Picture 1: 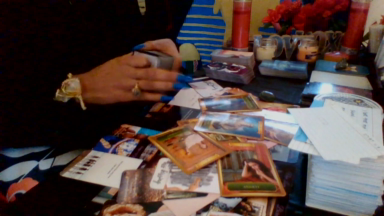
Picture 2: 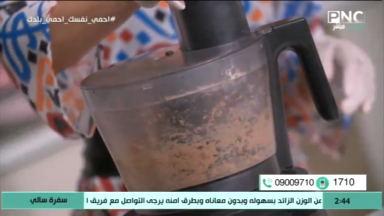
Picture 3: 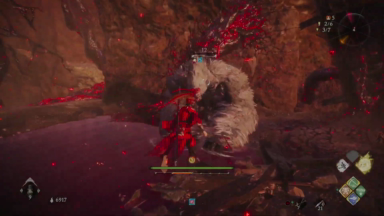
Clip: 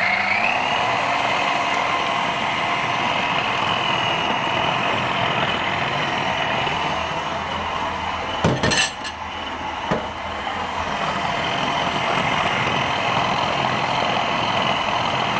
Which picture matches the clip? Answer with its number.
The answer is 2